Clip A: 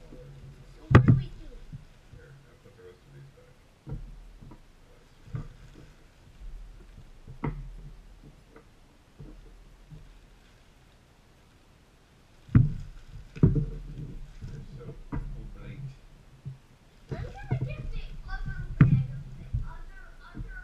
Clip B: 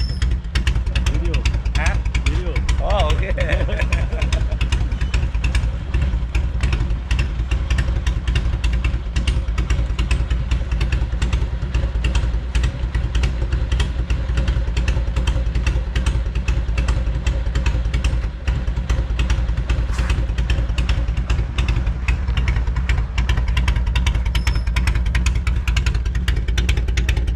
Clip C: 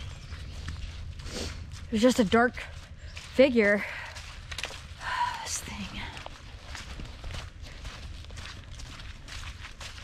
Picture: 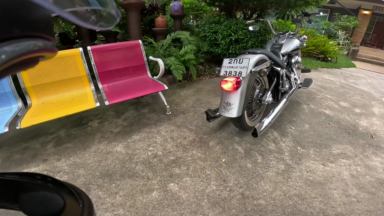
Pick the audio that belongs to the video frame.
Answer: B